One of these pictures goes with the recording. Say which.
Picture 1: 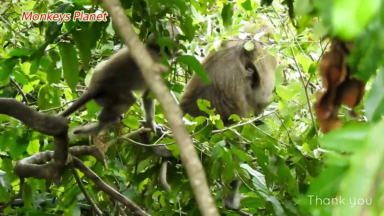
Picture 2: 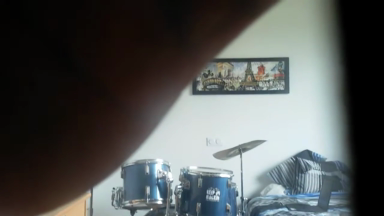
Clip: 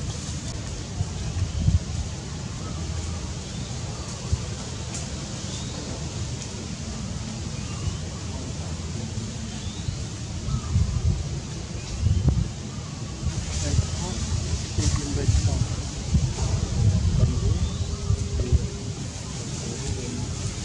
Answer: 1